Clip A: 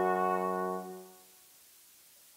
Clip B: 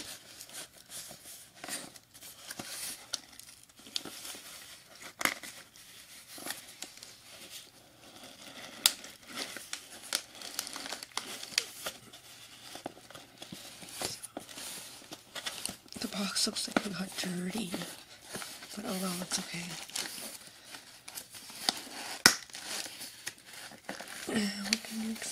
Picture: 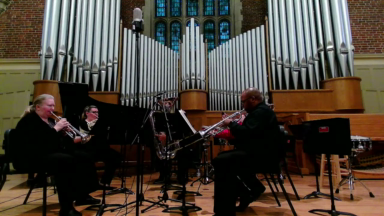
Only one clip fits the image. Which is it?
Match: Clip A